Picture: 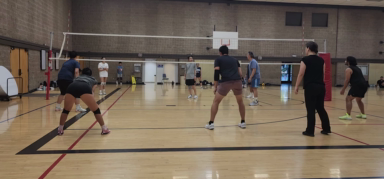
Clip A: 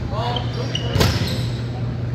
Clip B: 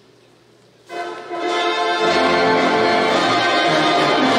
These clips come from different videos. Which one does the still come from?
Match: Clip A